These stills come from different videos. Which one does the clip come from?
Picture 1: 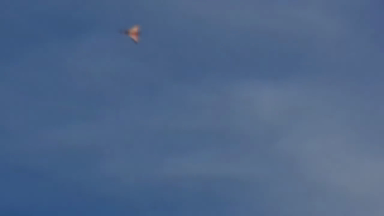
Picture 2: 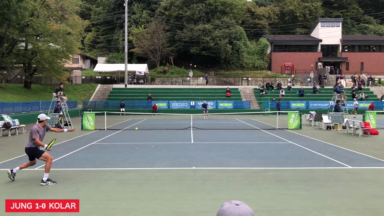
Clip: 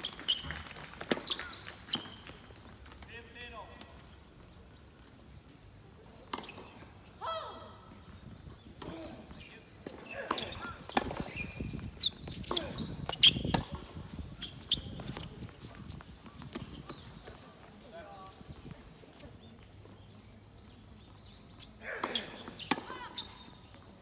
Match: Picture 2